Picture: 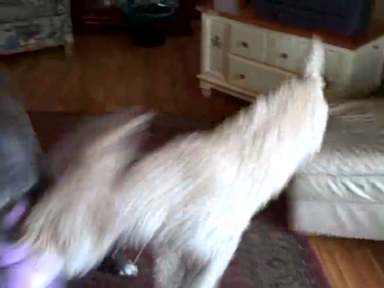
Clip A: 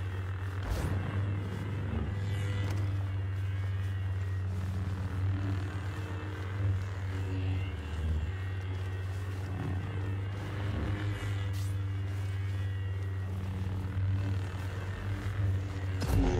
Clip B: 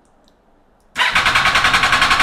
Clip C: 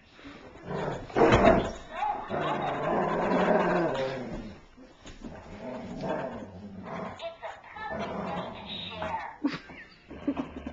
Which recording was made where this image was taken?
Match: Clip C